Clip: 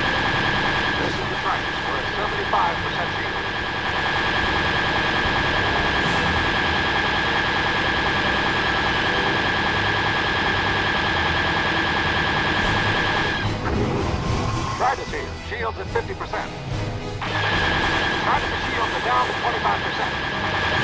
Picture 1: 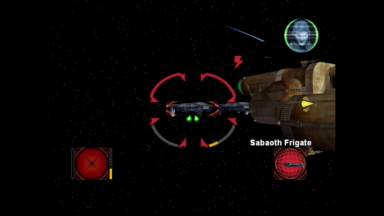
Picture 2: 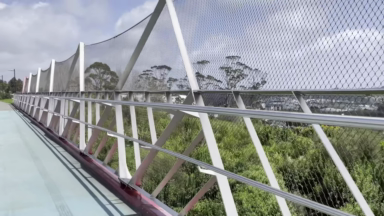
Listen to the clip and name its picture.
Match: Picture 1